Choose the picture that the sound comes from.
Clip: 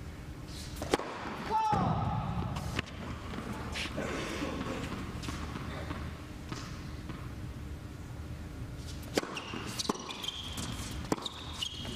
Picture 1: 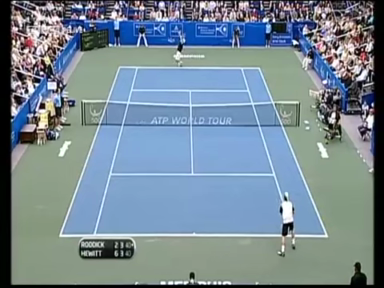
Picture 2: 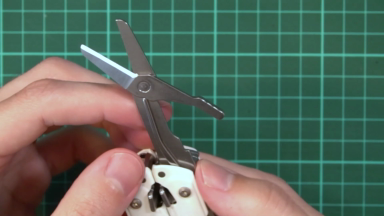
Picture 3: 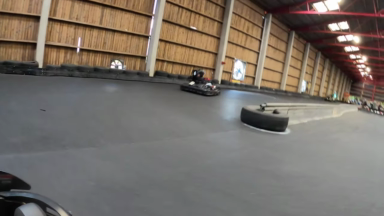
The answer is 1